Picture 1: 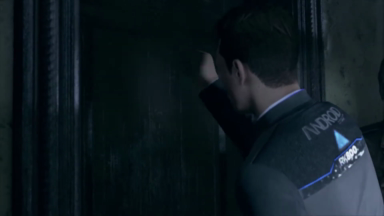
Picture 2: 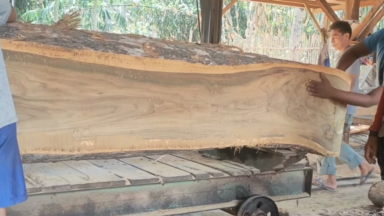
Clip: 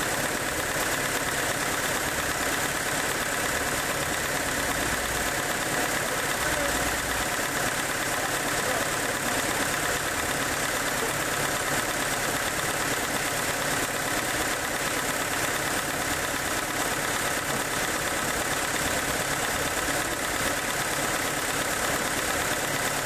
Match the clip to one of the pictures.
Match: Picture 2